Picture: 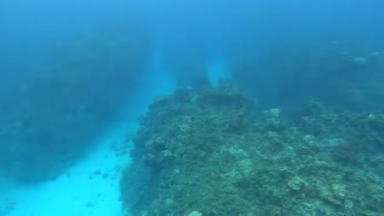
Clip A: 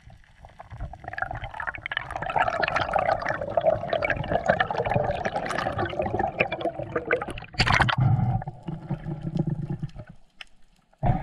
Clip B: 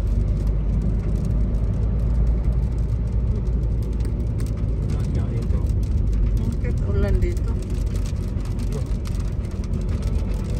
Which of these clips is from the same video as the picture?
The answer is A